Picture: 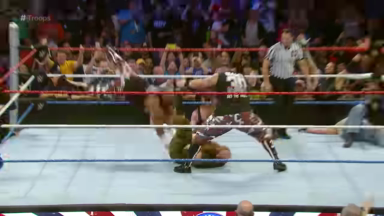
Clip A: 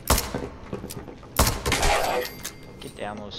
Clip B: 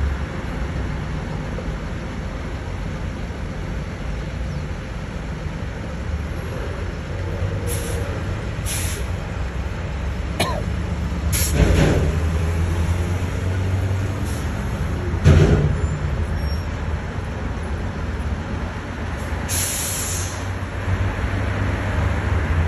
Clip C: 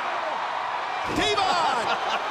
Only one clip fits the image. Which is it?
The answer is C